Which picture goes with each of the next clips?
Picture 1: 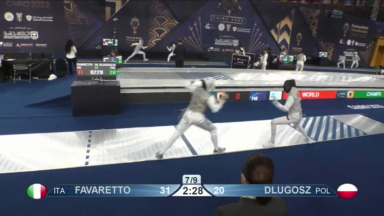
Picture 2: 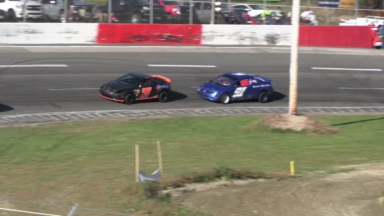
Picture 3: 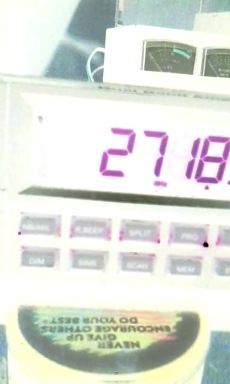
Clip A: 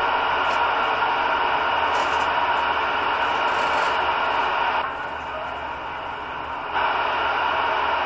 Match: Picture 3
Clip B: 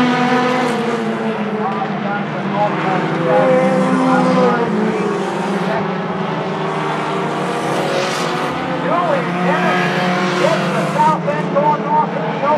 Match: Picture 2